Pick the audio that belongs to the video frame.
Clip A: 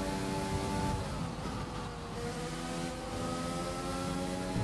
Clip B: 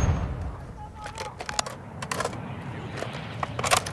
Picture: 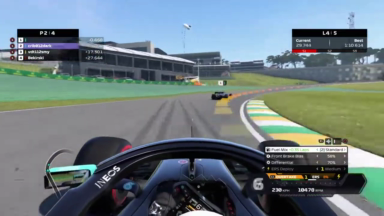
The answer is A